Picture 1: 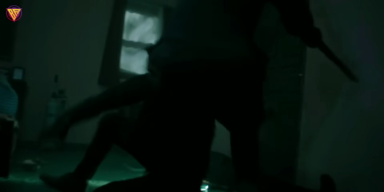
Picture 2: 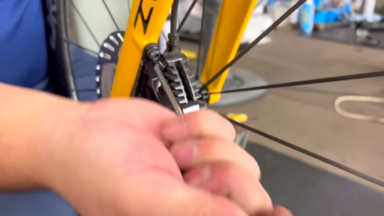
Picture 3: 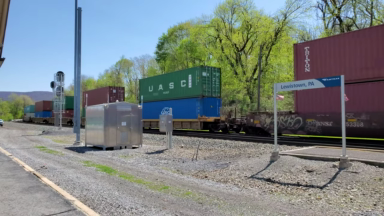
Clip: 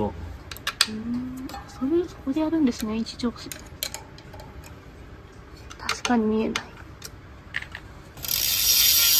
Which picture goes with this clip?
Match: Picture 2